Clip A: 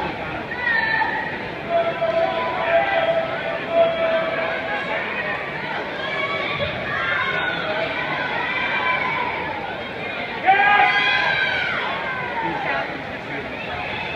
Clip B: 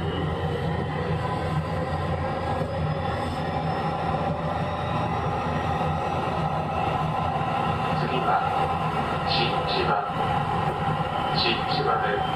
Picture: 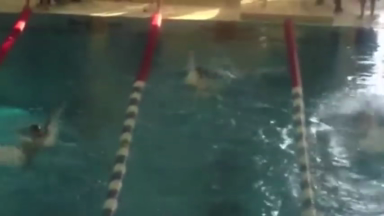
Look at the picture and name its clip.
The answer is A